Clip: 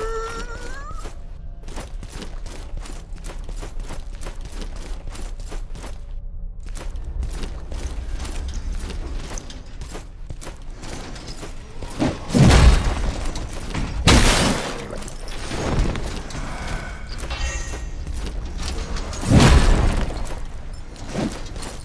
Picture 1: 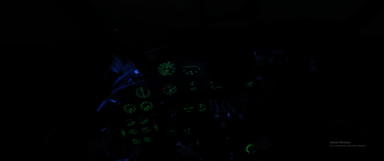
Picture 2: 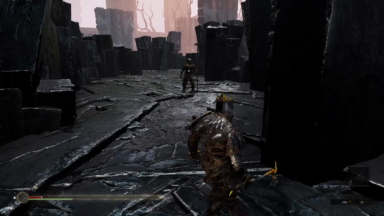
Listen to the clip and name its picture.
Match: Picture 2